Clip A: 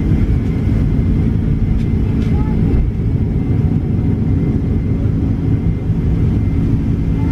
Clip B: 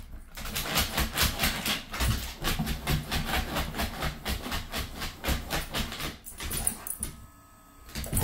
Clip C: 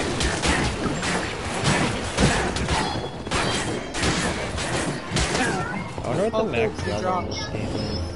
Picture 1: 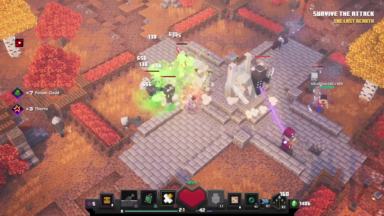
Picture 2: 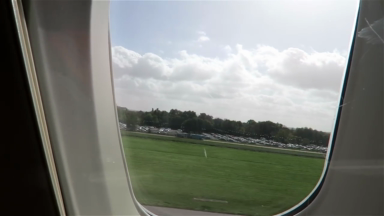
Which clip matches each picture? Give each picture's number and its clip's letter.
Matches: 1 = C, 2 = A